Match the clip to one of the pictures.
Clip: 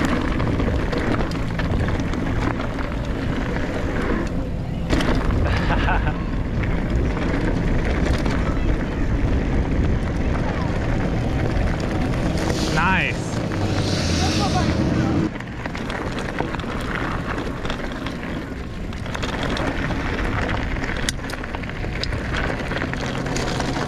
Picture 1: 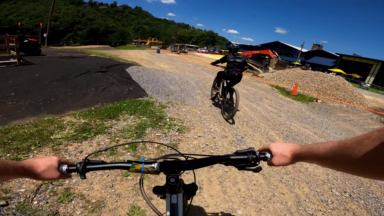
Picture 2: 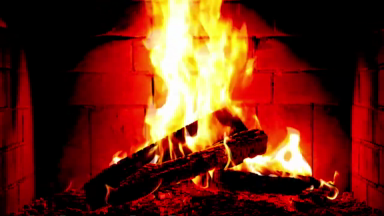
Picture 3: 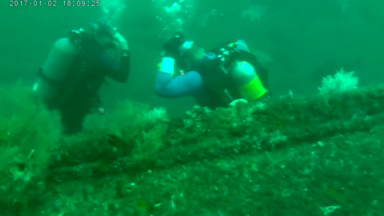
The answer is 1